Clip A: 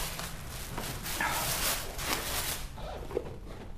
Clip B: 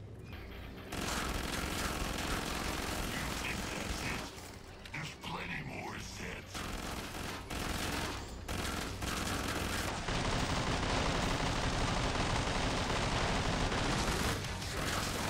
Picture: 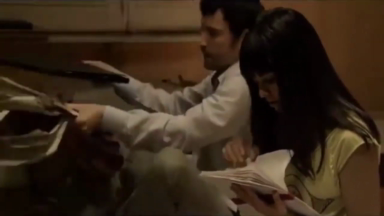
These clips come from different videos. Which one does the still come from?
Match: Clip A